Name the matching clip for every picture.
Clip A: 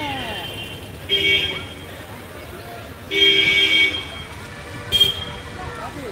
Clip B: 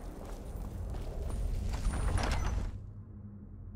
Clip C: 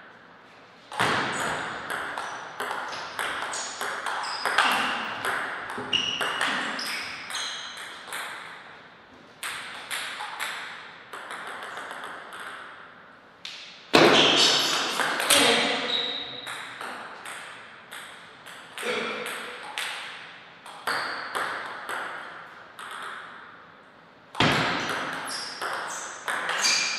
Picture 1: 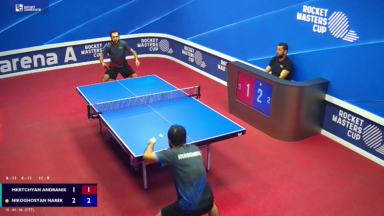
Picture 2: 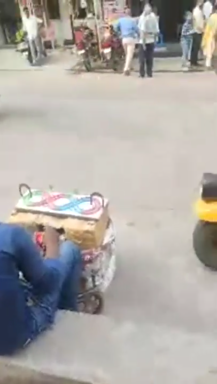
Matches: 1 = C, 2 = A